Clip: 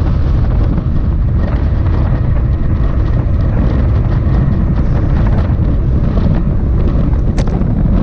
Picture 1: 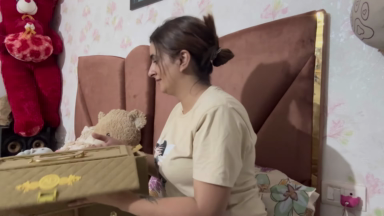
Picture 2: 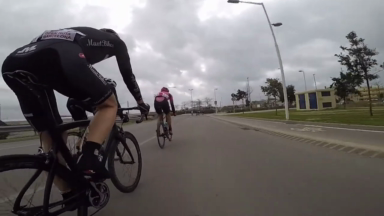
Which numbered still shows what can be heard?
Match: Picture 2